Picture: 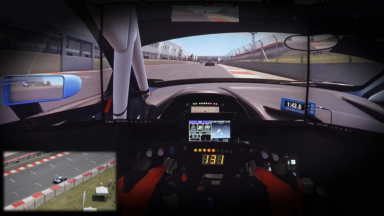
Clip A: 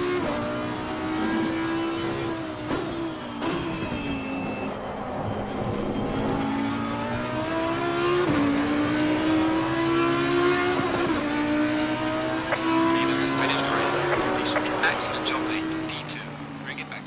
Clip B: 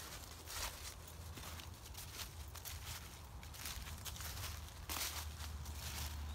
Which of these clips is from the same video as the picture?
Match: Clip A